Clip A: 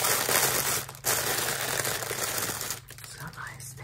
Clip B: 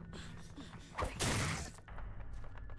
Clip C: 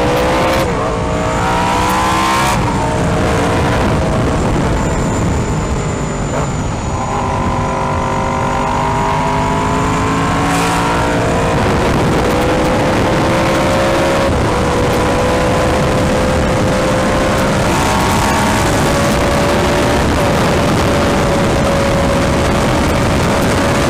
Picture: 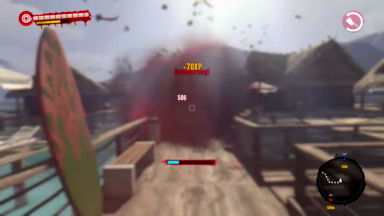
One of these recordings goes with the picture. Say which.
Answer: B